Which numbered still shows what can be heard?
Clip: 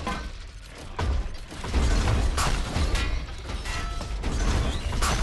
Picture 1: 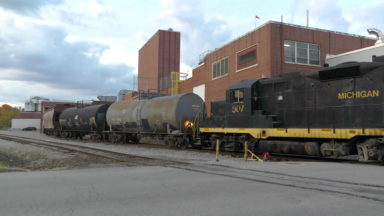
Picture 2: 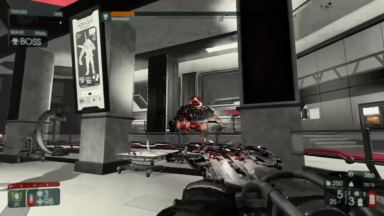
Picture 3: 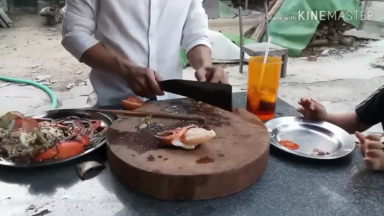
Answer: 2